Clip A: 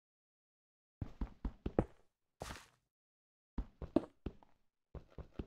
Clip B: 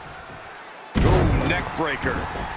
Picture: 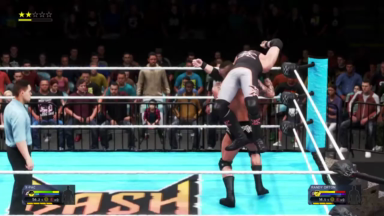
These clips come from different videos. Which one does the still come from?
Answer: B